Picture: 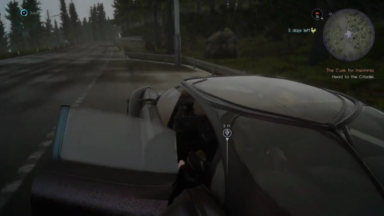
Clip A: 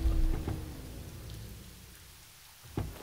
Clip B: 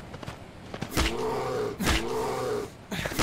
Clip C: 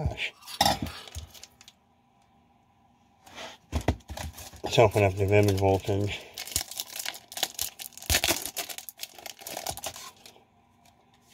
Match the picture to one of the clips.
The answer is A